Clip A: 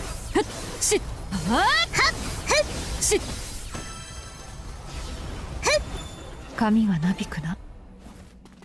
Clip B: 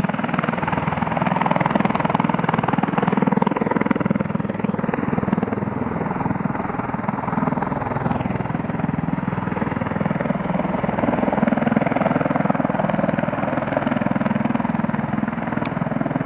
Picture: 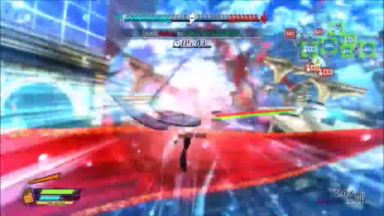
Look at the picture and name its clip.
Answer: A